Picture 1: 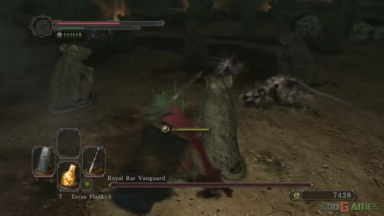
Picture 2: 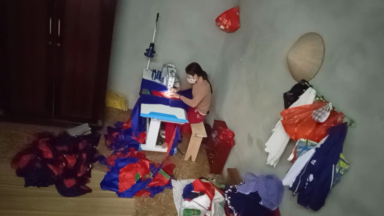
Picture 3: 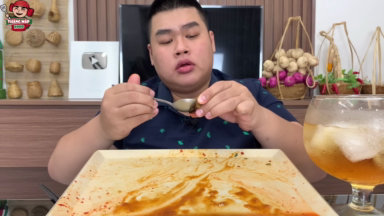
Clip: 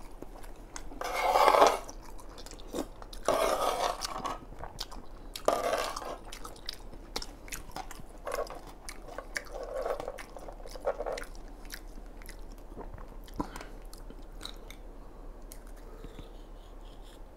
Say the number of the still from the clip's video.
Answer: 3